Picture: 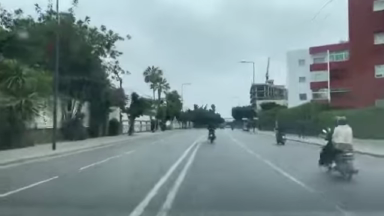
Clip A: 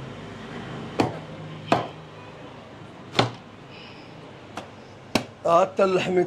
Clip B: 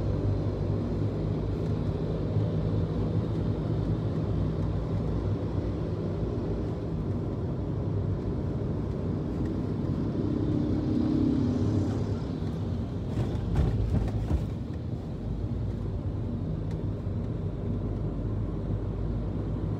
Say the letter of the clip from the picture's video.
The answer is B